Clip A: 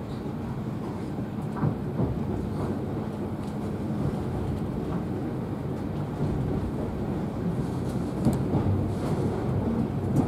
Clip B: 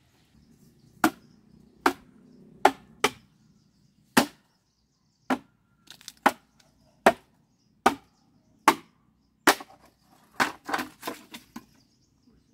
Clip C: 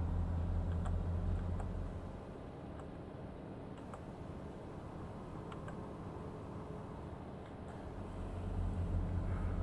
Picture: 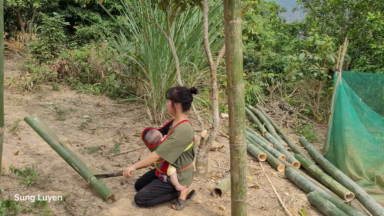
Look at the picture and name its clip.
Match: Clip B